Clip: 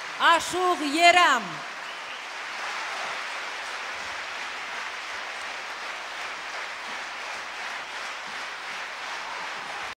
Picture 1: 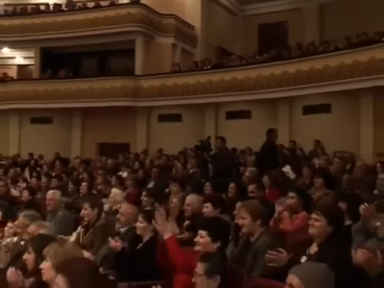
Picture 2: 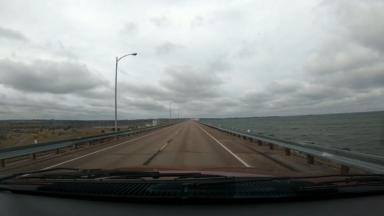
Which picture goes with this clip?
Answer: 1